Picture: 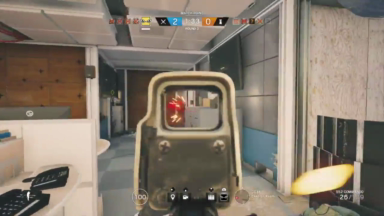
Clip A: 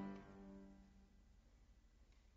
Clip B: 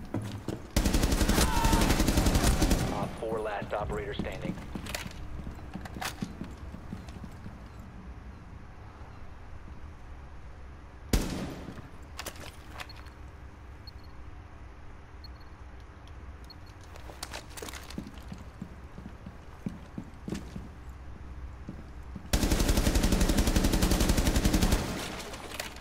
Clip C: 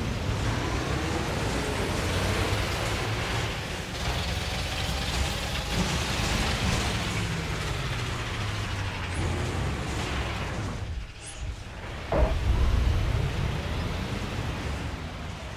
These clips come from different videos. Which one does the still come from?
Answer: B